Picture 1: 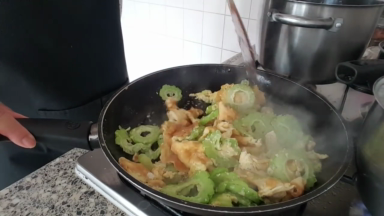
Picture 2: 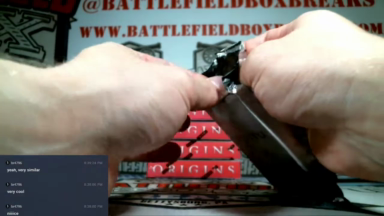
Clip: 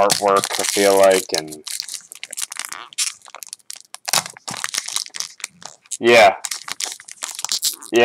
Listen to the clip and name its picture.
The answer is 2